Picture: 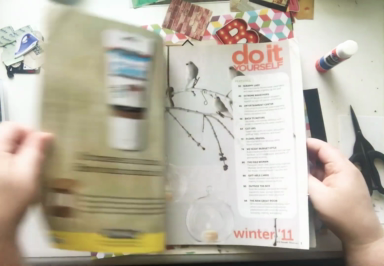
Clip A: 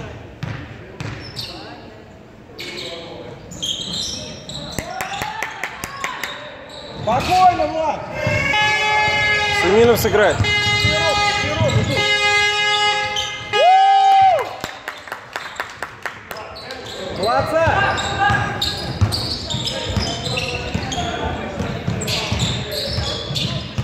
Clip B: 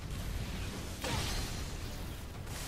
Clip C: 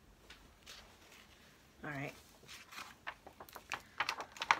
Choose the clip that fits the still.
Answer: C